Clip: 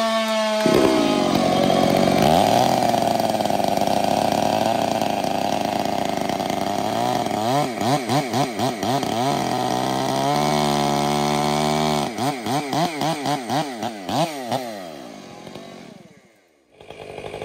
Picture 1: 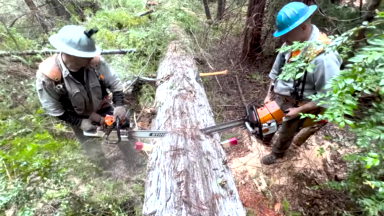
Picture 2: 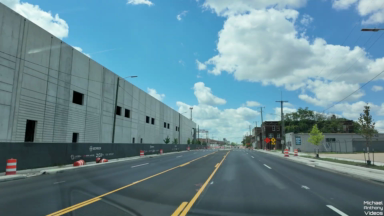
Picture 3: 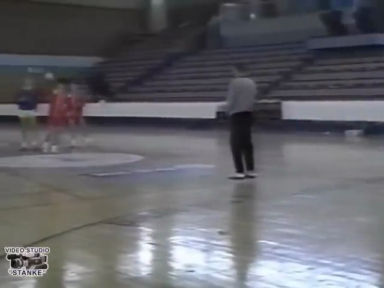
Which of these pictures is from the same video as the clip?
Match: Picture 1